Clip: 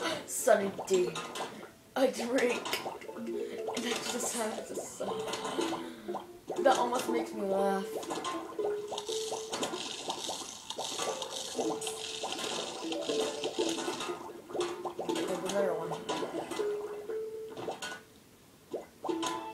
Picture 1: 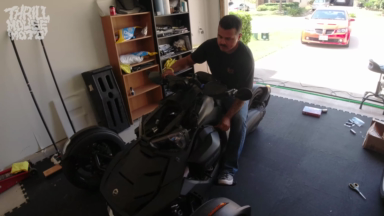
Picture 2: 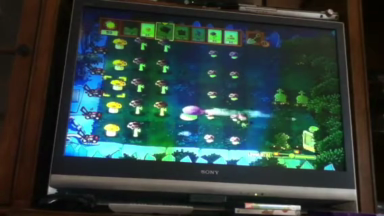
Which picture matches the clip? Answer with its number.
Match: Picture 2